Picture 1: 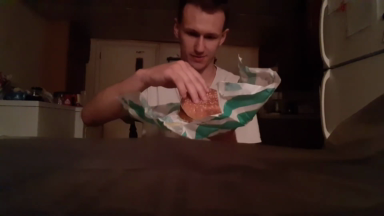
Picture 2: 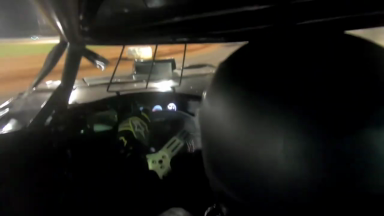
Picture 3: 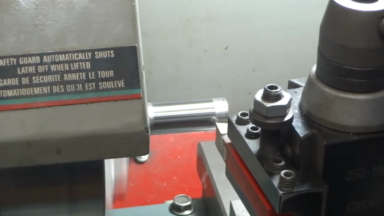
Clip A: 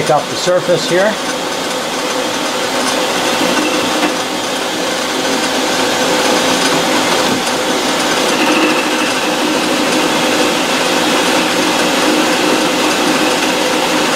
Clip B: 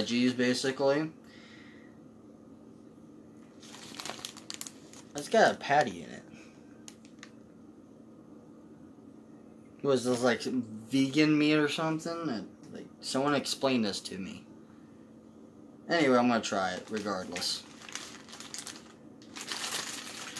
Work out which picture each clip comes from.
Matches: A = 3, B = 1